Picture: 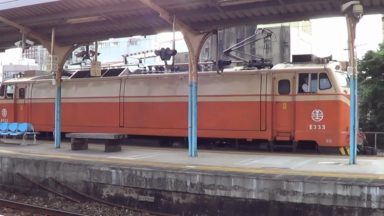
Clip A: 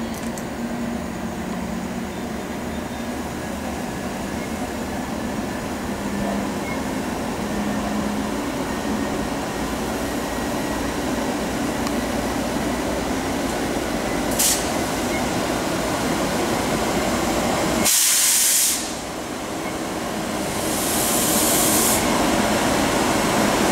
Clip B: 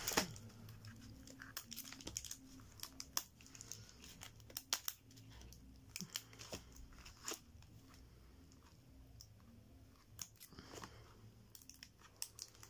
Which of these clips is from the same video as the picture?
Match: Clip A